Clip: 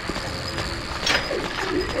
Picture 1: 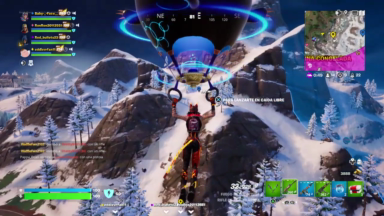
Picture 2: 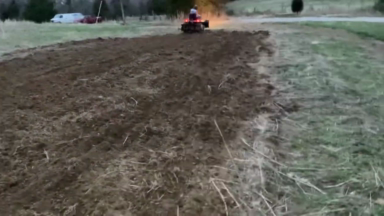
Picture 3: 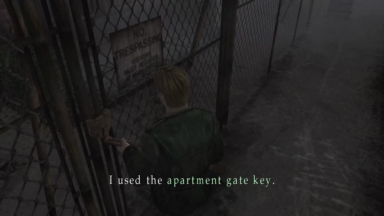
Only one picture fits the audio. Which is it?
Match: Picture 3